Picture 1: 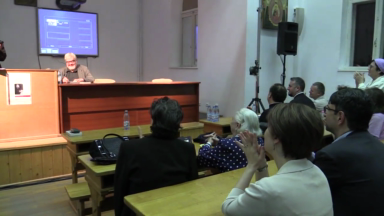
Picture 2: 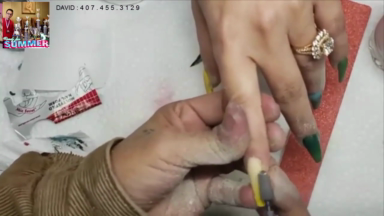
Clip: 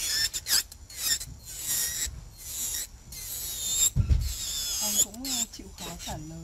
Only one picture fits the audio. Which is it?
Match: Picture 2